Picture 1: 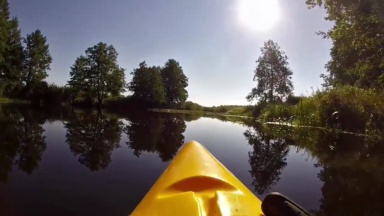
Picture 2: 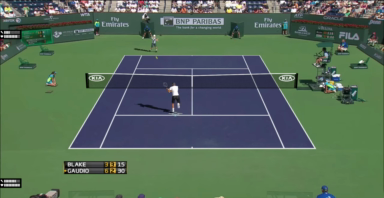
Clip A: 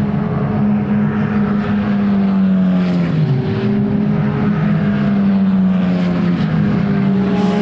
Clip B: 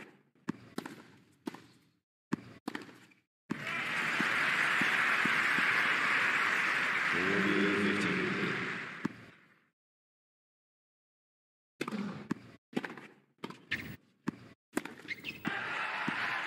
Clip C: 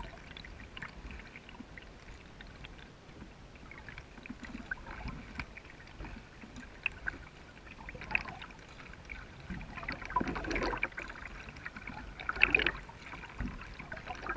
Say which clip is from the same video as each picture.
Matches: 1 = C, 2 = B